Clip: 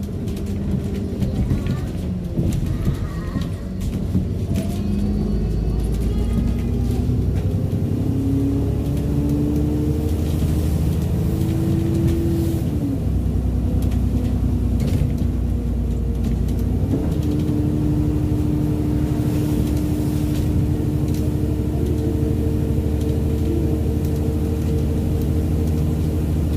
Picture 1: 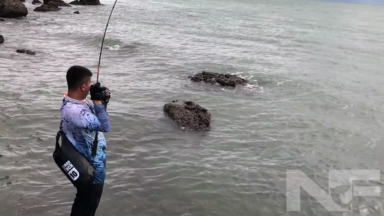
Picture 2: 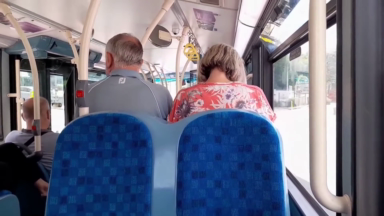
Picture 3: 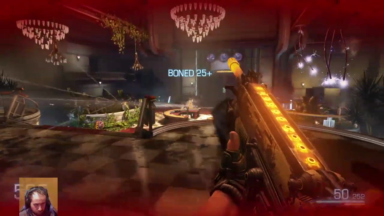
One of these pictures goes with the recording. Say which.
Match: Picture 2